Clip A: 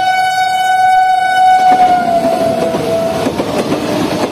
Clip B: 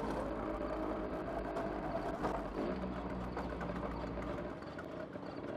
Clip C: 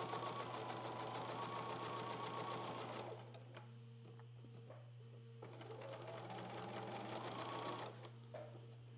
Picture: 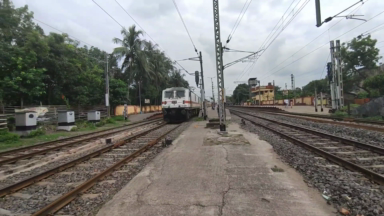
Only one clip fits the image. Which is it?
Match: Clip A